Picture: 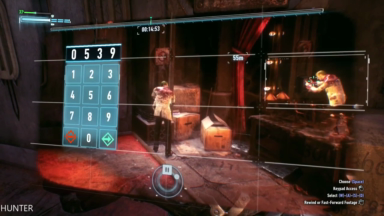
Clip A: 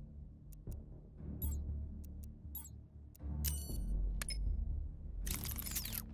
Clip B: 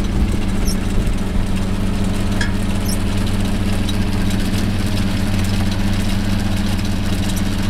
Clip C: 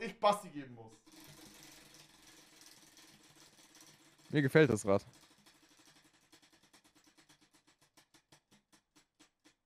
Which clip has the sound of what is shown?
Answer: A